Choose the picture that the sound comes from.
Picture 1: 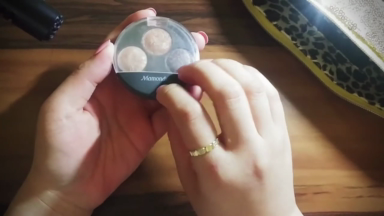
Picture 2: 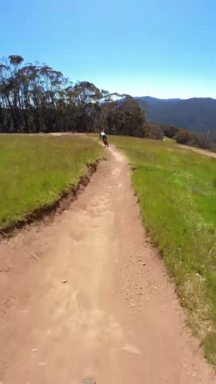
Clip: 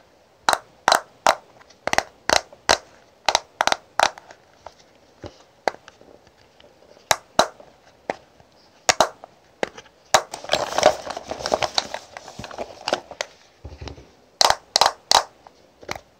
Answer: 1